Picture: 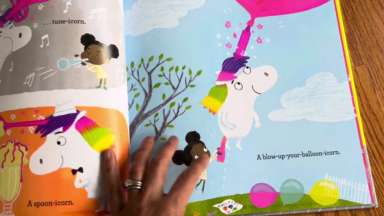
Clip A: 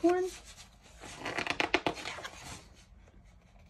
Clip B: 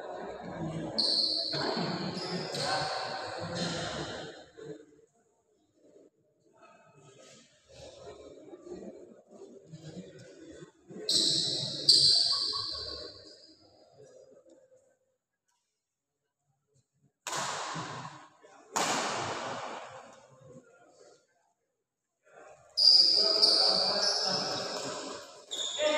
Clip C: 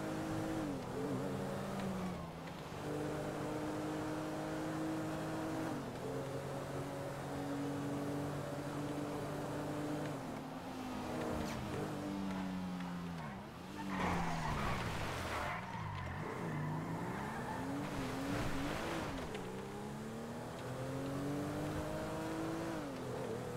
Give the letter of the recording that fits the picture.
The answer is A